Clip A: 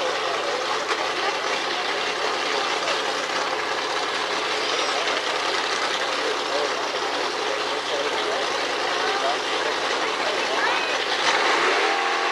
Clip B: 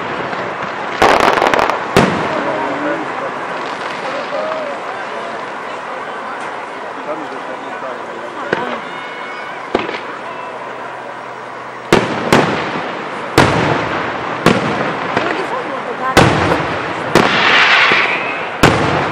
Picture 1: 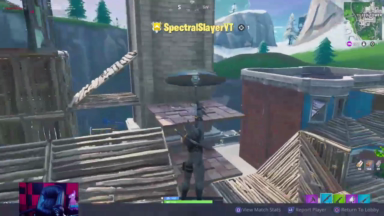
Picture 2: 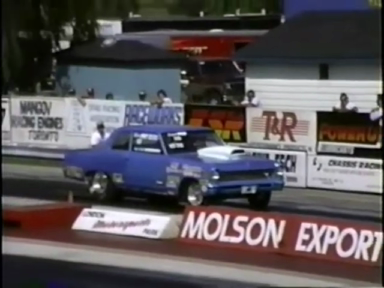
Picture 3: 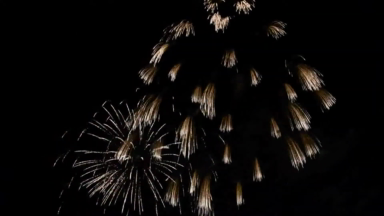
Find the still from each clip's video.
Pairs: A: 2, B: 3